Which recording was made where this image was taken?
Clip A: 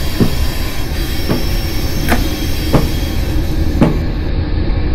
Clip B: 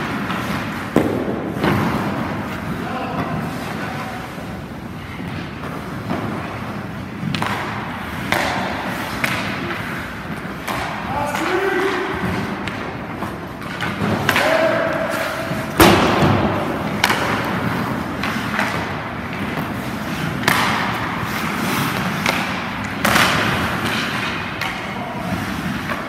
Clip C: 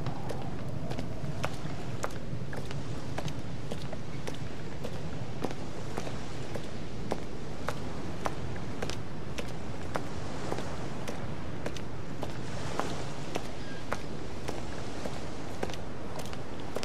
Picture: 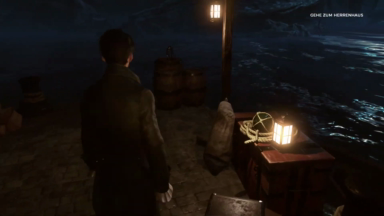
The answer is C